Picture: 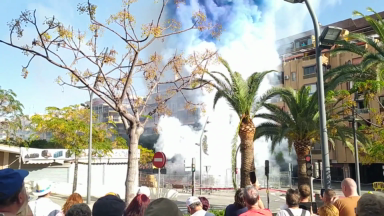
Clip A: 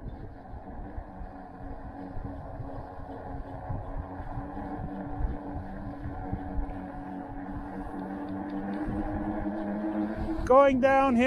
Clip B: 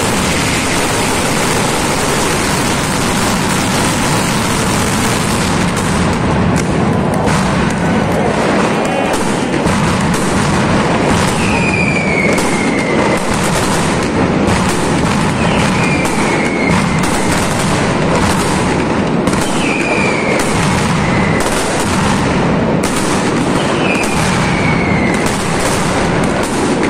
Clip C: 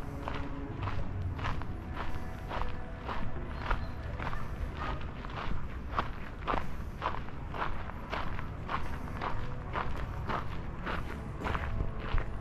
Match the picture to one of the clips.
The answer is B